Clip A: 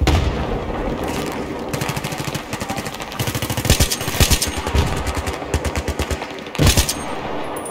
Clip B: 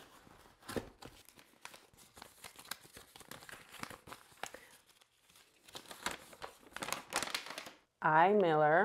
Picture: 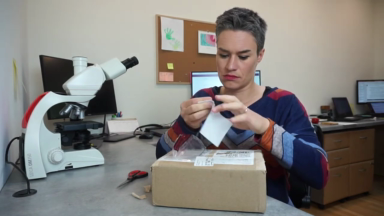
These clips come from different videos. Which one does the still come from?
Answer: B